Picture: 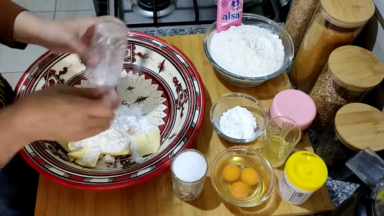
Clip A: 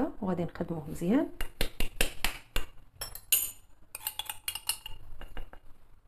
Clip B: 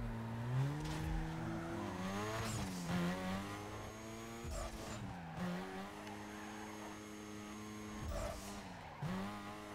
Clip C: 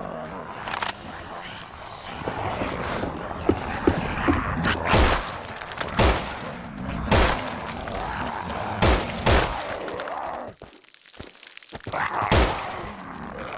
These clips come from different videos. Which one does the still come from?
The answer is A